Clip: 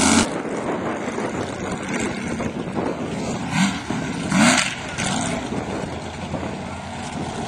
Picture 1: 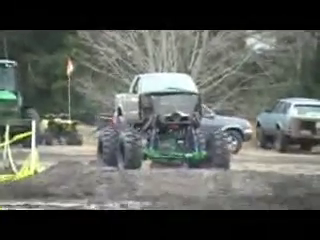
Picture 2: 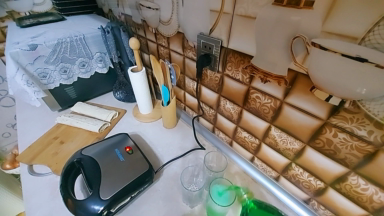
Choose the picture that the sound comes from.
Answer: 1